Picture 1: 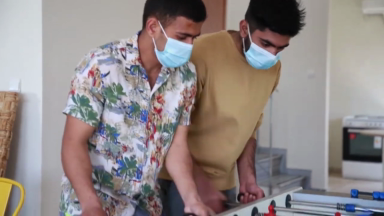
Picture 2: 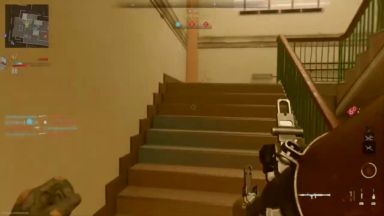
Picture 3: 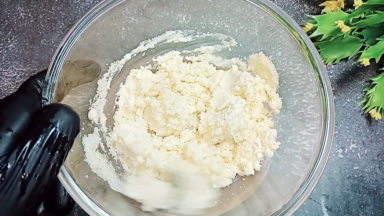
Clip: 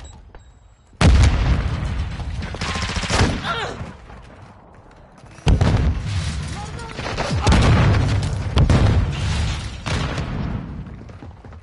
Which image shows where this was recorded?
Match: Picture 2